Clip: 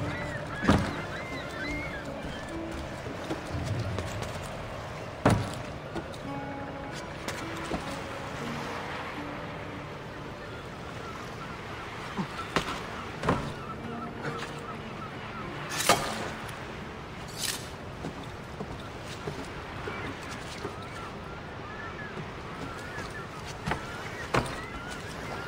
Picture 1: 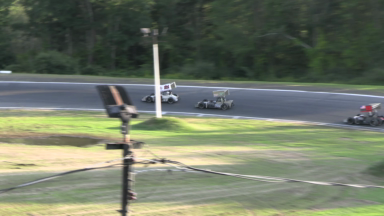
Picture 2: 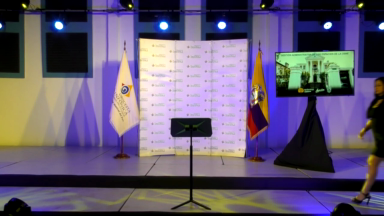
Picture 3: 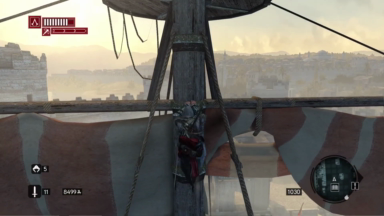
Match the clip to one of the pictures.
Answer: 3